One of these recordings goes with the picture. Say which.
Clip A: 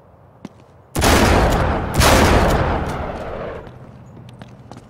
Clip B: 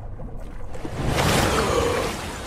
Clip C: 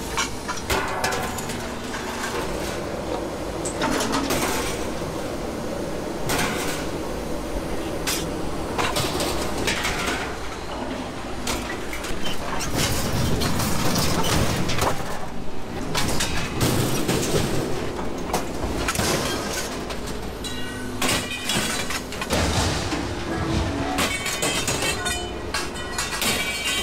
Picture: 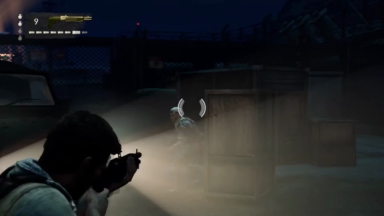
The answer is A